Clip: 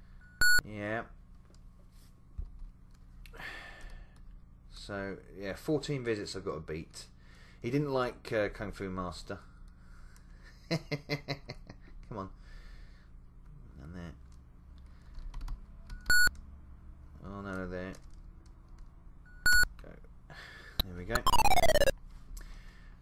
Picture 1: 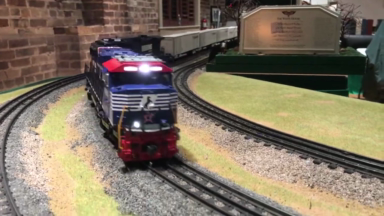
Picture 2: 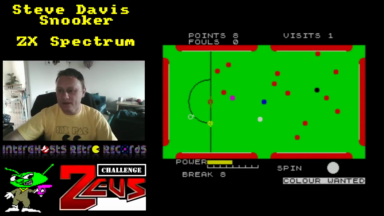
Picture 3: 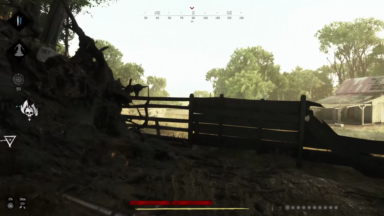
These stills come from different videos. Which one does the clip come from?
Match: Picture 2